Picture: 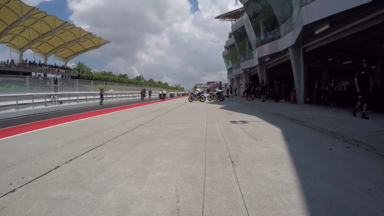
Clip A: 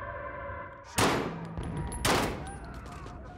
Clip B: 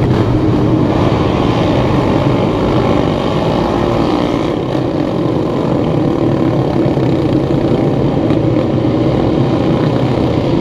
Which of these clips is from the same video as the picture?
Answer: B